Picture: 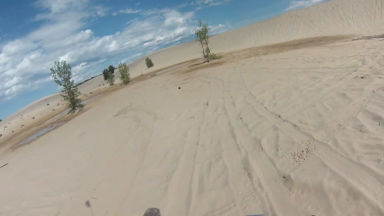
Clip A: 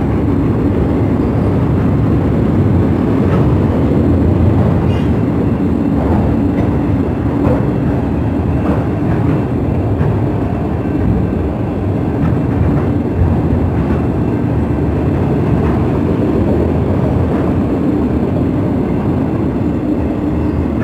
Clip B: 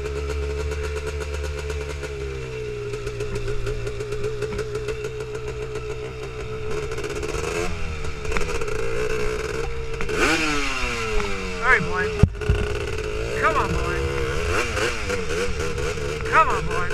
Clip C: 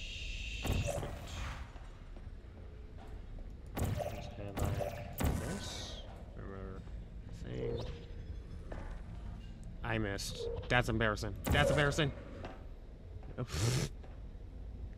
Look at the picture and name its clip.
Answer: B